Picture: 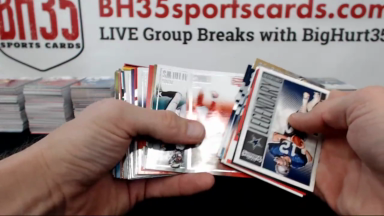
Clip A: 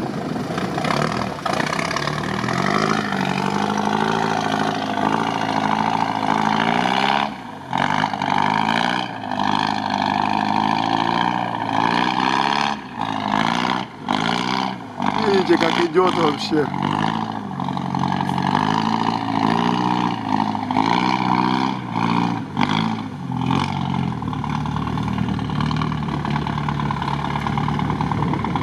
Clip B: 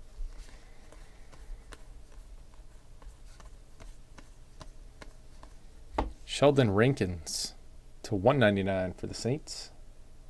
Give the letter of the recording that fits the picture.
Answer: B